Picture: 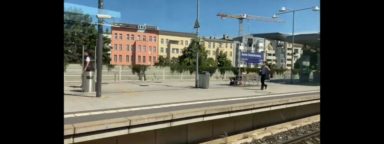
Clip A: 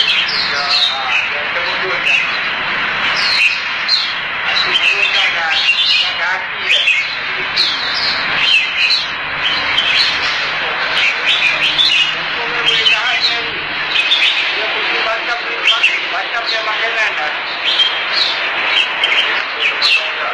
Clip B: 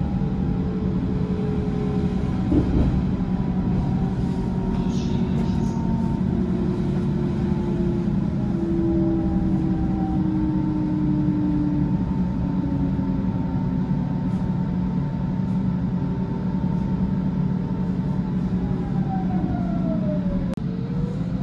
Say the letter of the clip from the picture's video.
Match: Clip B